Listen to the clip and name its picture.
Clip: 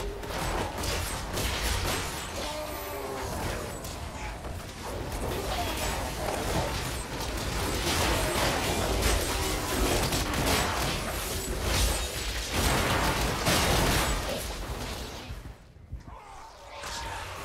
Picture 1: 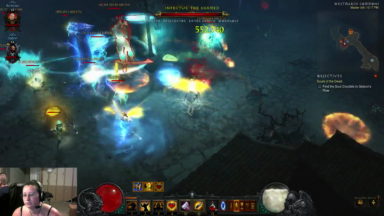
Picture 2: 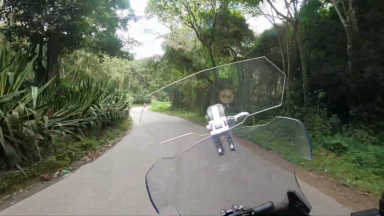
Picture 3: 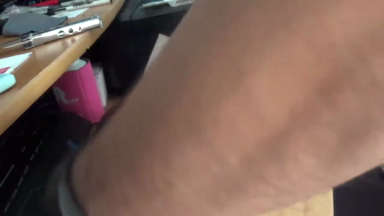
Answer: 1